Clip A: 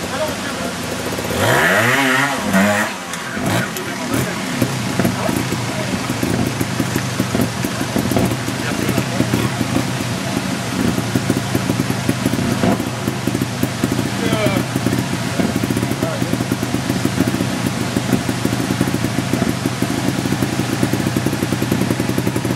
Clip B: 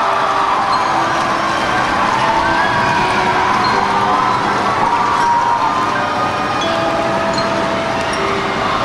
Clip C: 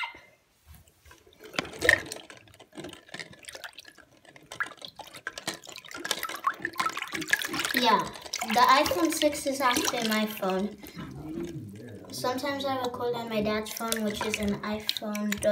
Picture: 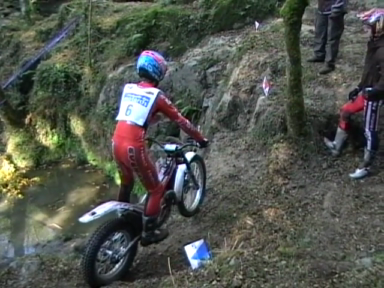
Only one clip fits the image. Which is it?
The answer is A